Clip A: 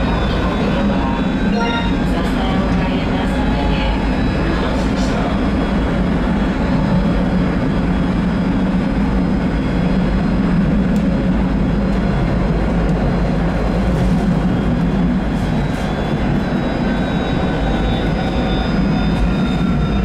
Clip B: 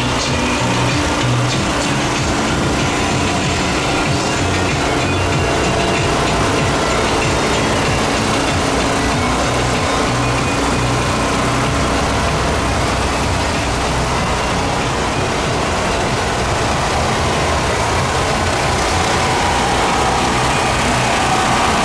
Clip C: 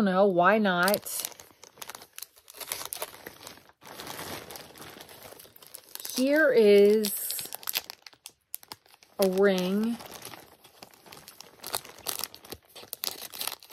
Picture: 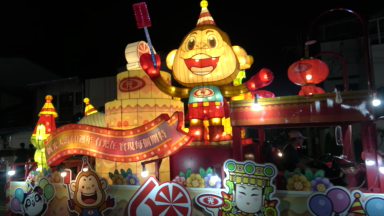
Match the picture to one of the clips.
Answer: B